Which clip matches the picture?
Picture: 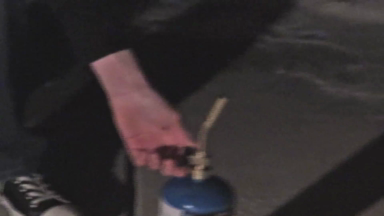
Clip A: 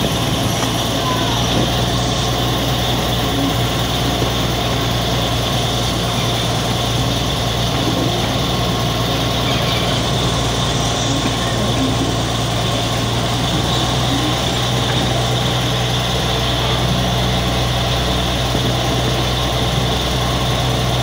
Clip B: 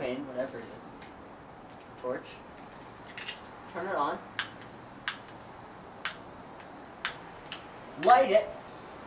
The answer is B